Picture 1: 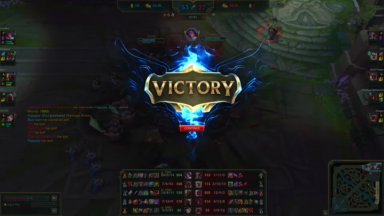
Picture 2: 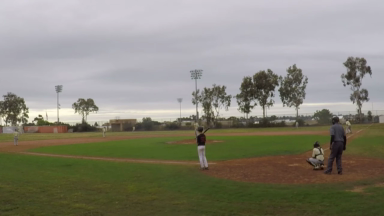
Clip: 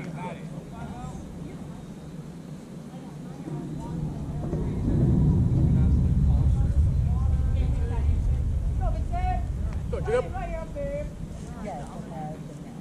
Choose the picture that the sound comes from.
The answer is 2